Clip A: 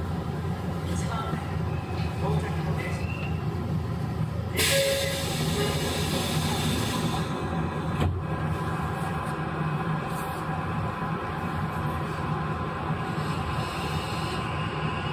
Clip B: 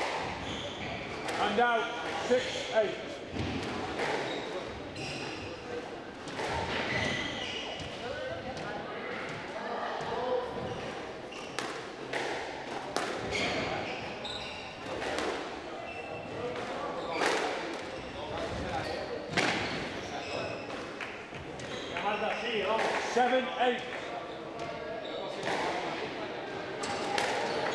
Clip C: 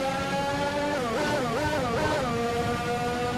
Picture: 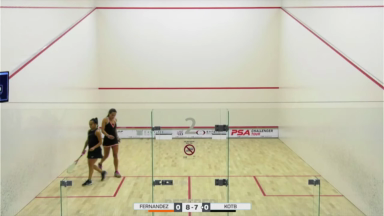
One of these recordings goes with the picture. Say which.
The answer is B